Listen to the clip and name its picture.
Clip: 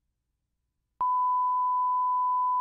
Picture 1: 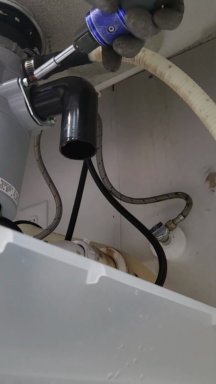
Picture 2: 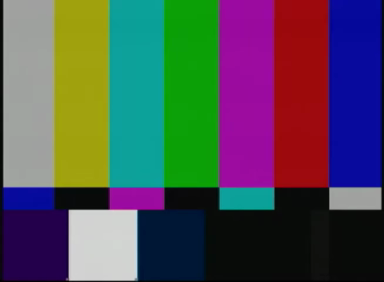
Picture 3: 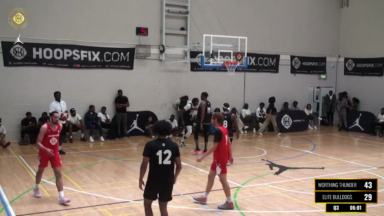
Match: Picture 2